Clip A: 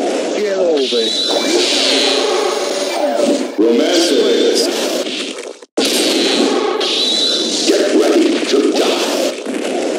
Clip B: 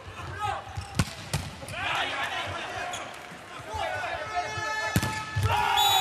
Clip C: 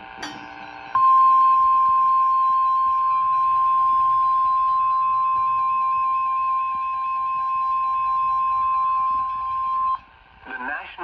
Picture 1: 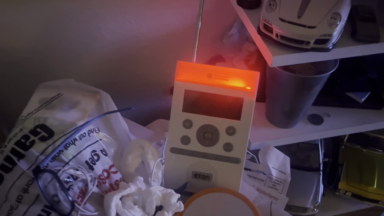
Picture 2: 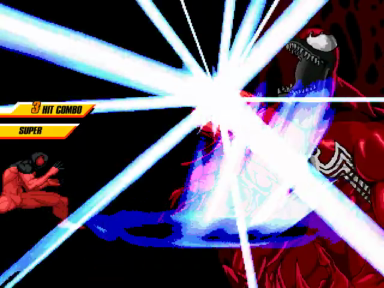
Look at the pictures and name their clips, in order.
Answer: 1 C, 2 A